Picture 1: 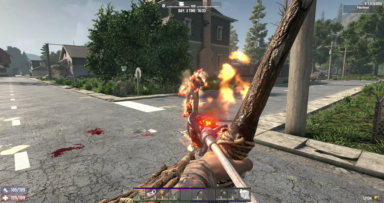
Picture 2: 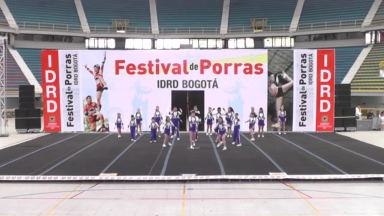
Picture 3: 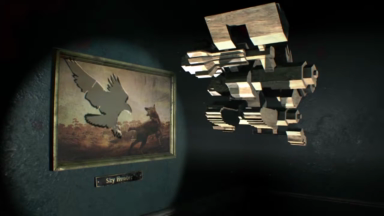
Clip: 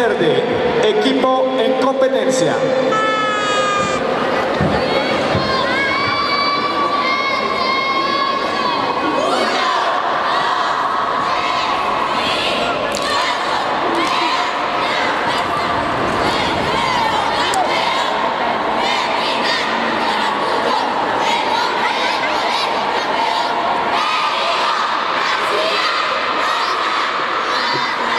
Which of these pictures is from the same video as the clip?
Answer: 2